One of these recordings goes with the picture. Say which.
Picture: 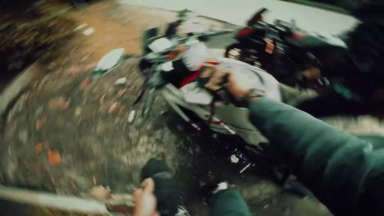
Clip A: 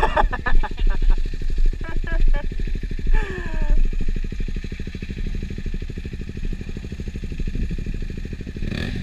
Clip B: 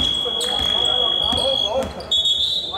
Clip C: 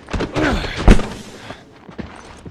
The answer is A